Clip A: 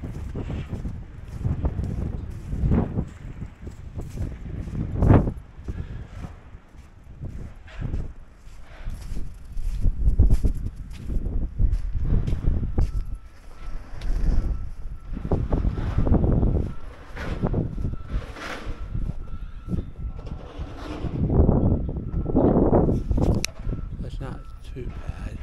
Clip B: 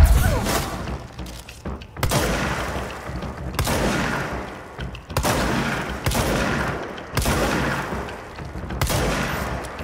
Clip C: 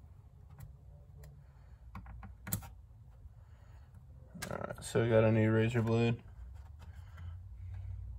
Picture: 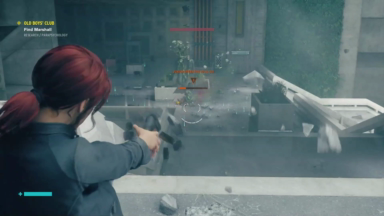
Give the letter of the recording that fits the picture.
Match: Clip B